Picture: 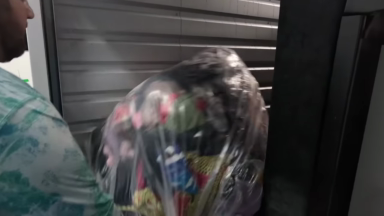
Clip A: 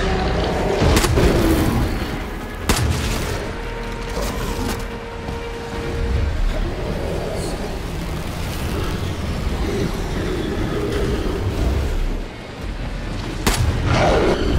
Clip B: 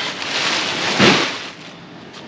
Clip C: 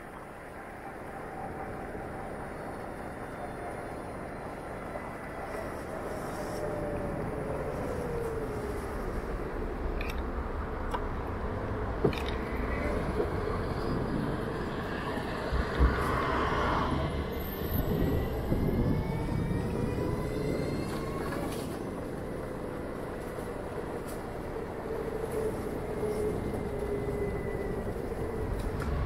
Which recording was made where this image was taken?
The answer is B